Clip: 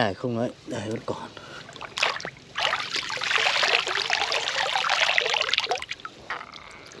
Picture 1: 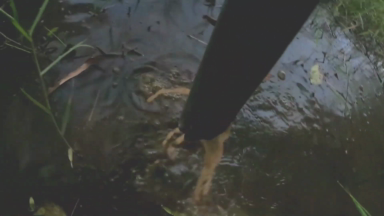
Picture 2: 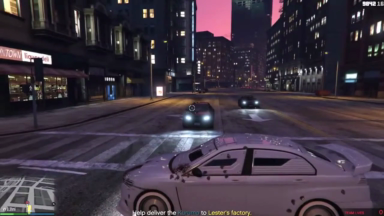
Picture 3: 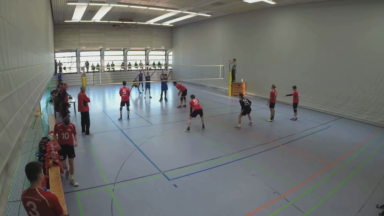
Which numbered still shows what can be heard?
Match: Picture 1